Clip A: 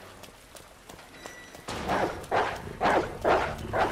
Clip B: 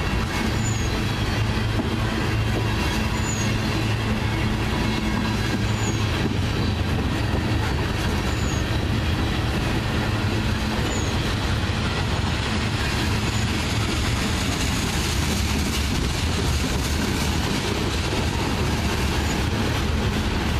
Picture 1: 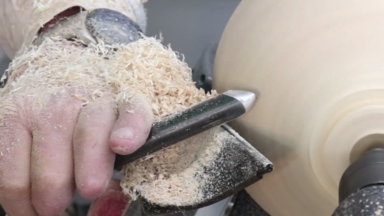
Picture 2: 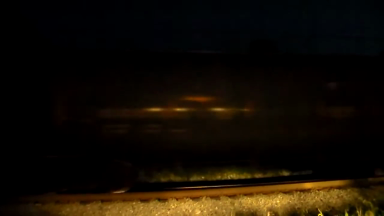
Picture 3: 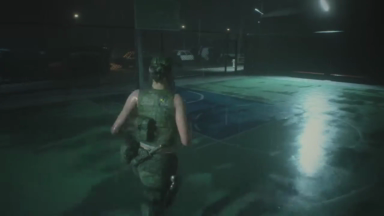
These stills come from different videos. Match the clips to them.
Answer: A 3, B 2